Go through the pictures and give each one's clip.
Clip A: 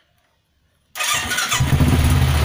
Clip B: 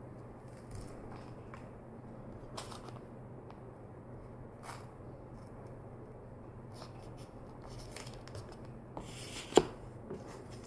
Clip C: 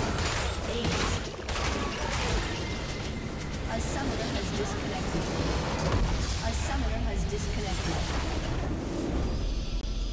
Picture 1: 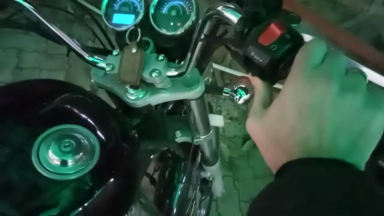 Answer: A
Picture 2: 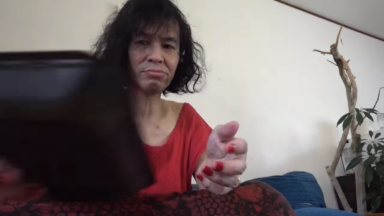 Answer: B